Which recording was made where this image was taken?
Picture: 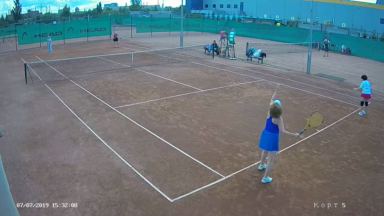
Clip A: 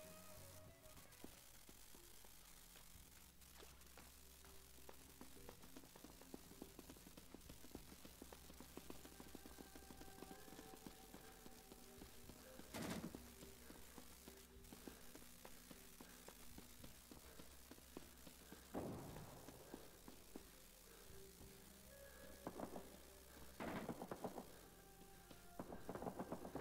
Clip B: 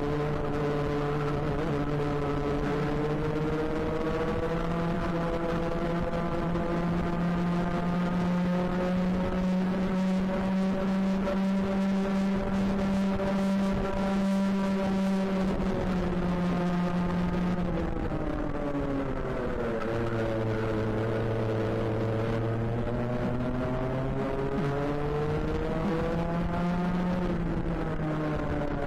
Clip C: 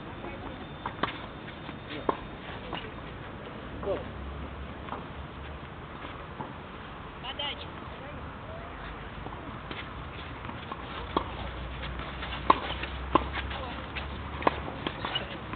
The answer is C